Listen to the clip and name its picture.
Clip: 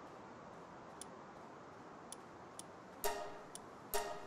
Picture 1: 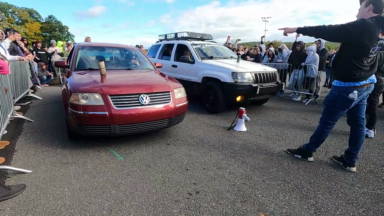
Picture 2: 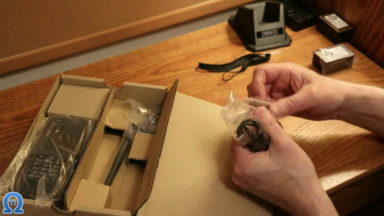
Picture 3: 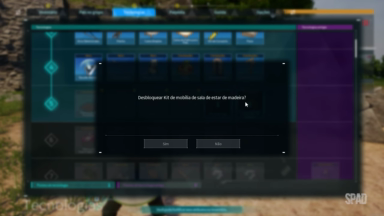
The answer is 3